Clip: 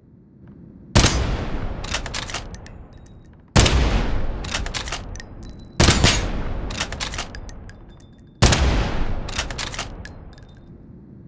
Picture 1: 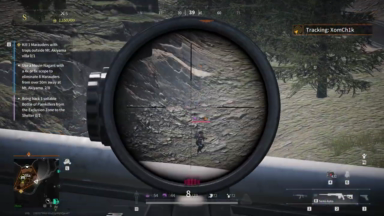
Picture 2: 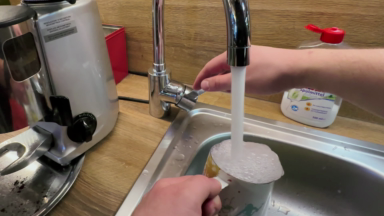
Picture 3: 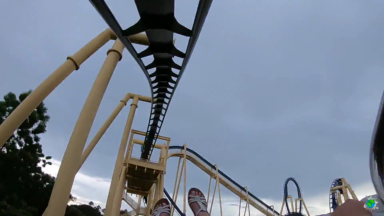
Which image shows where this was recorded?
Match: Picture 1